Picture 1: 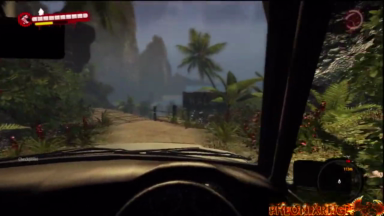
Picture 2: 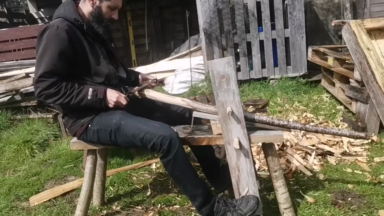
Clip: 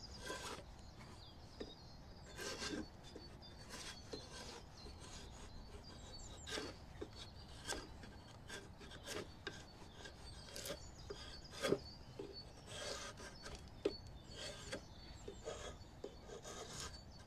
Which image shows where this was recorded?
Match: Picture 2